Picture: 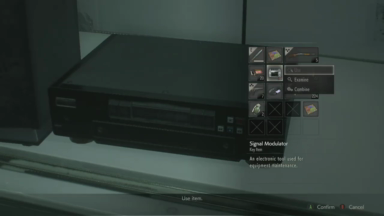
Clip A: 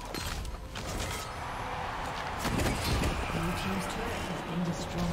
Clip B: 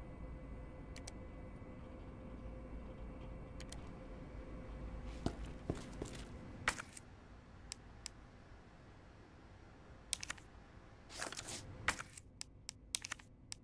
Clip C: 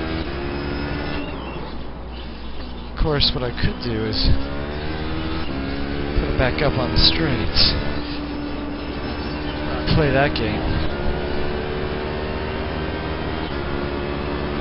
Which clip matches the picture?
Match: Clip B